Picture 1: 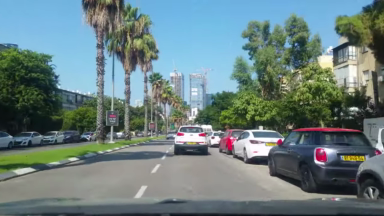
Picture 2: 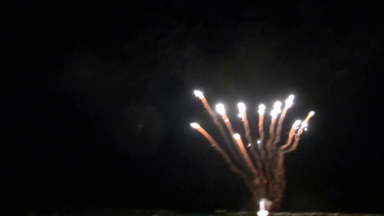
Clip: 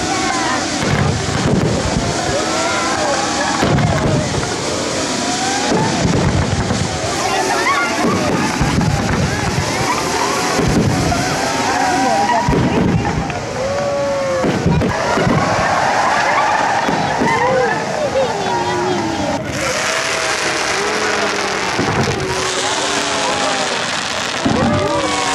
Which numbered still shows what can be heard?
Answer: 2